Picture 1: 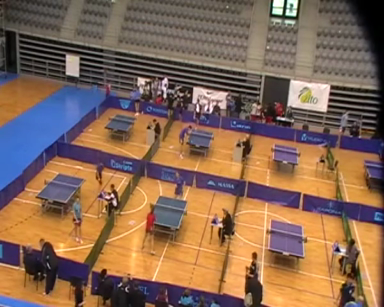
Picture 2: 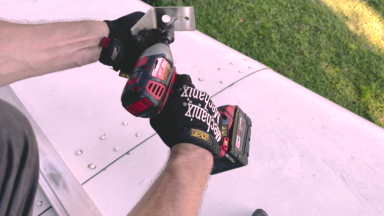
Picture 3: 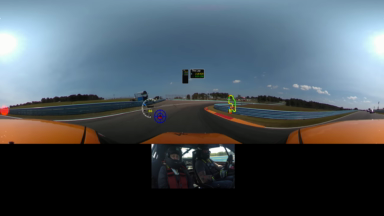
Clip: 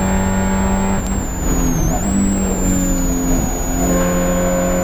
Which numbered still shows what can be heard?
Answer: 3